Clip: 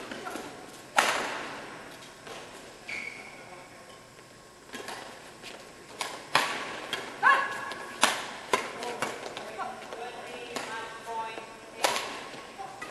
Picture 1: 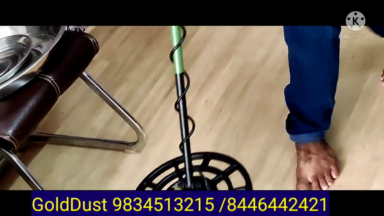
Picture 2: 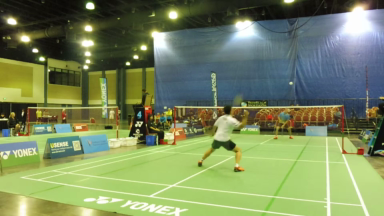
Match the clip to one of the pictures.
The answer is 2